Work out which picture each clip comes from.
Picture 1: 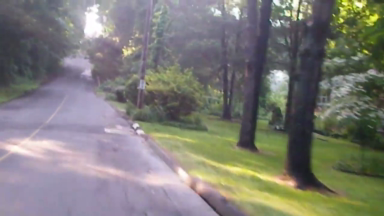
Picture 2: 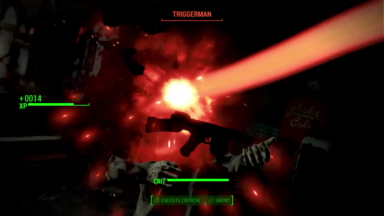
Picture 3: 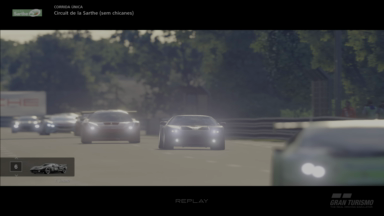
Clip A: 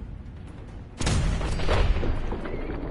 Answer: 2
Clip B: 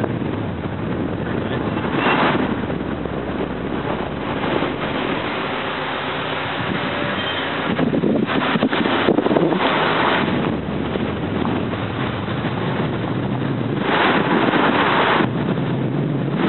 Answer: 1